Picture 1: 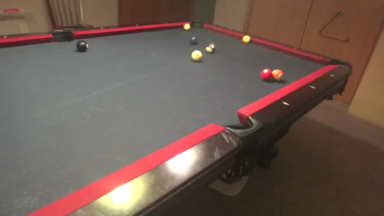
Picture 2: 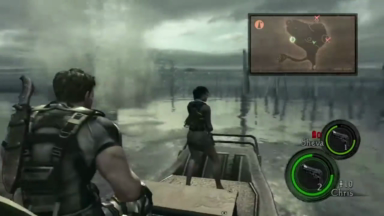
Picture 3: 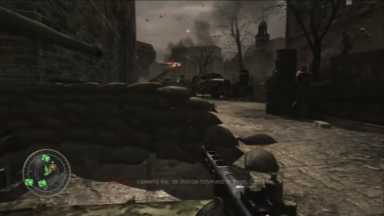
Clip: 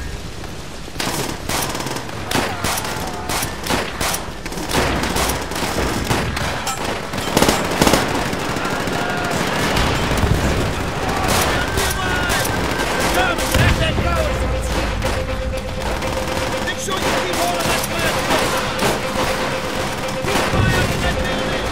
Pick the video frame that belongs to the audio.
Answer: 3